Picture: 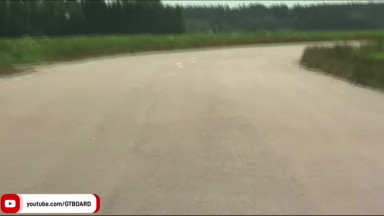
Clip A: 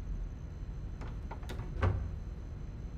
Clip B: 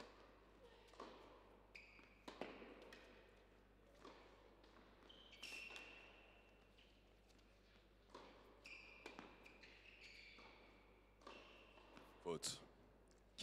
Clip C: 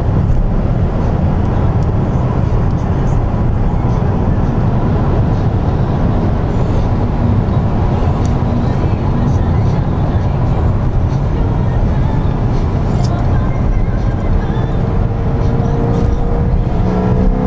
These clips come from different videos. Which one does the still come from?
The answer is C